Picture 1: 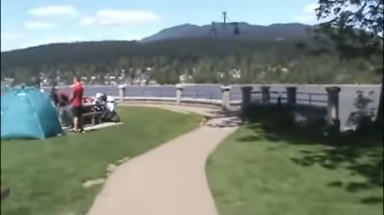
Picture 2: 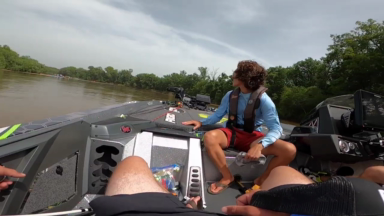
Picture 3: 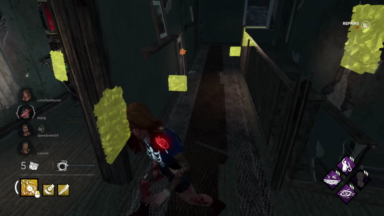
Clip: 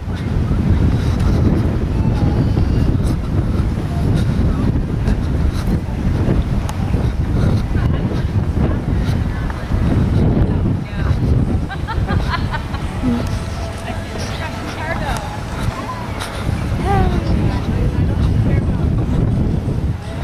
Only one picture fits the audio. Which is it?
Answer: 1